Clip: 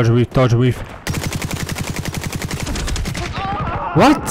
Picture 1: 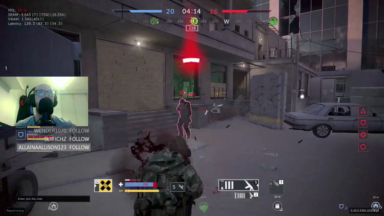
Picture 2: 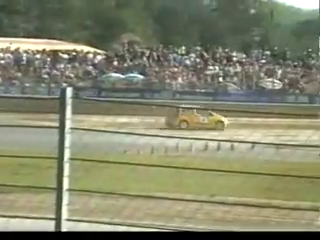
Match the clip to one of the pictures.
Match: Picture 1